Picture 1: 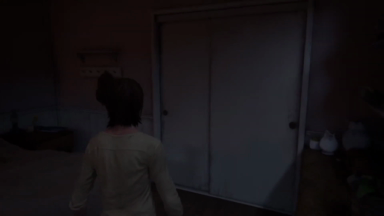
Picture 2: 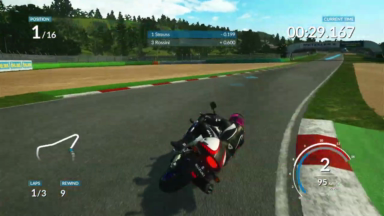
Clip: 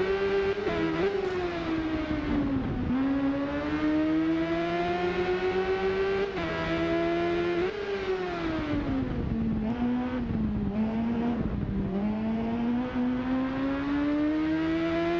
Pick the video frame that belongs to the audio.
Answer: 2